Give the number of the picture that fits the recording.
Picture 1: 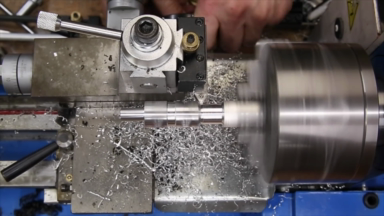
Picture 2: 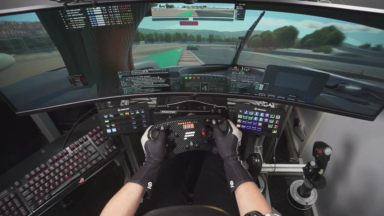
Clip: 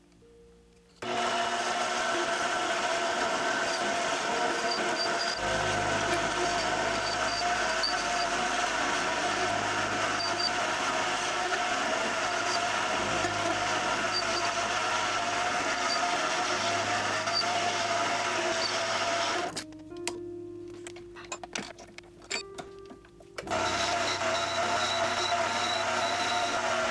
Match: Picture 1